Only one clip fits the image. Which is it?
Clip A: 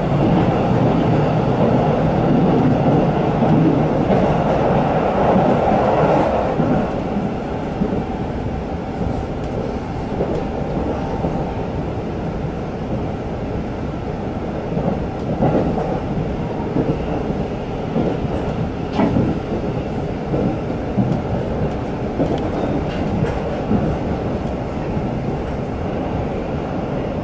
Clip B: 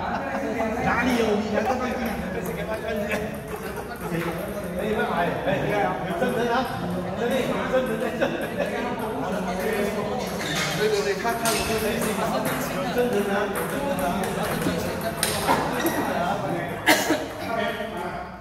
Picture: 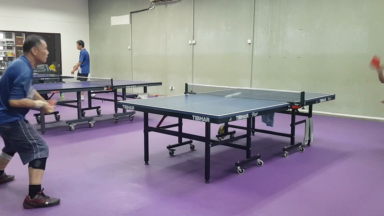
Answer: B